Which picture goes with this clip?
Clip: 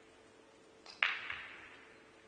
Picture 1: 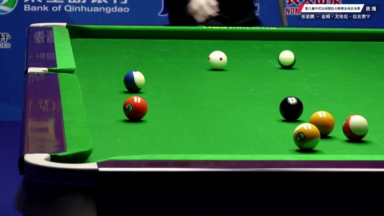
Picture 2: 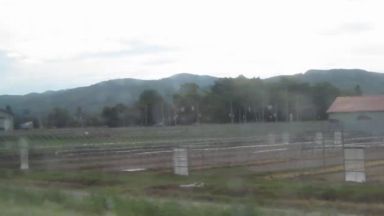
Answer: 1